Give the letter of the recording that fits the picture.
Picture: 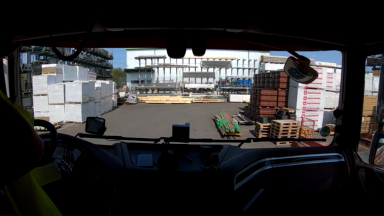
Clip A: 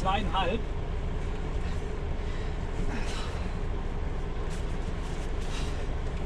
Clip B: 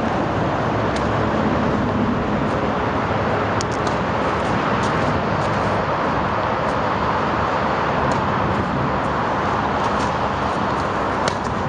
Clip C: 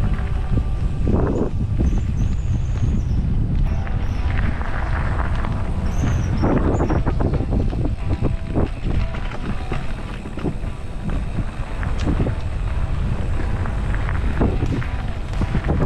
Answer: A